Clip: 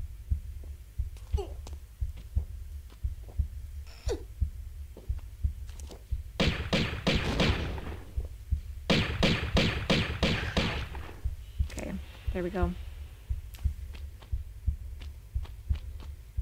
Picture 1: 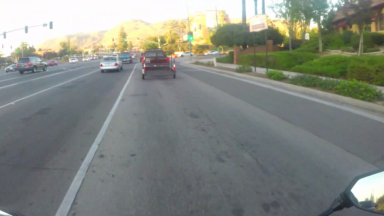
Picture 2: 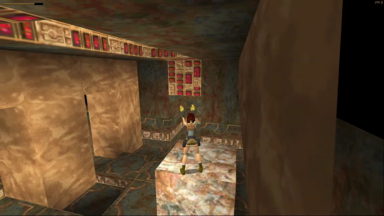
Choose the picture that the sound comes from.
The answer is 2